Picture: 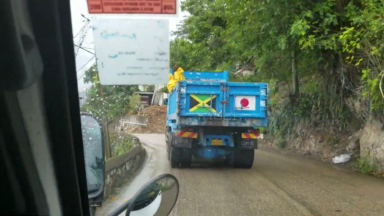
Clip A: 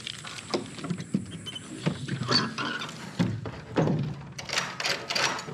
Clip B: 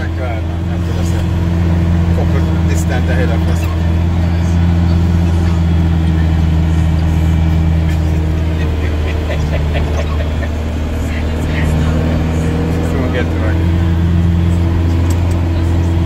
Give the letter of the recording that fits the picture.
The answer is B